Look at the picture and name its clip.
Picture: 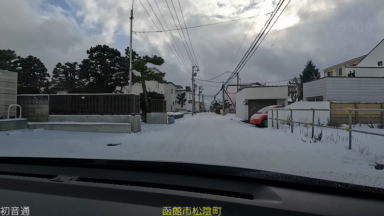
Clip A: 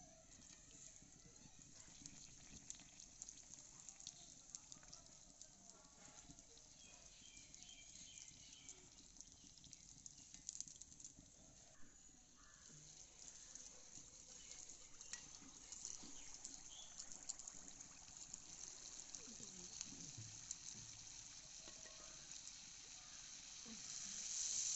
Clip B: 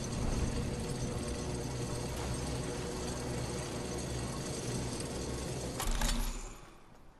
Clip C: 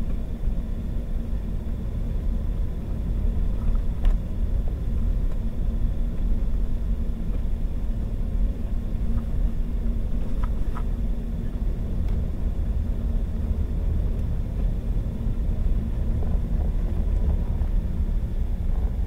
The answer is C